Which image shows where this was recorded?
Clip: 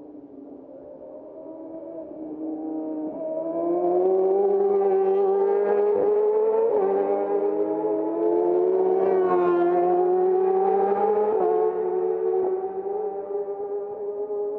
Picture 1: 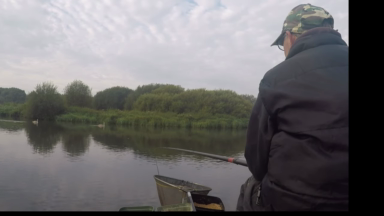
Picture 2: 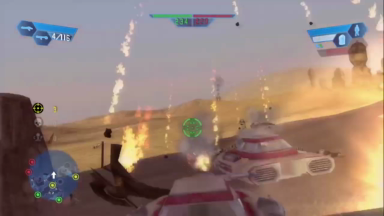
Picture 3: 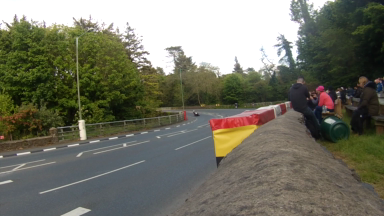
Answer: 3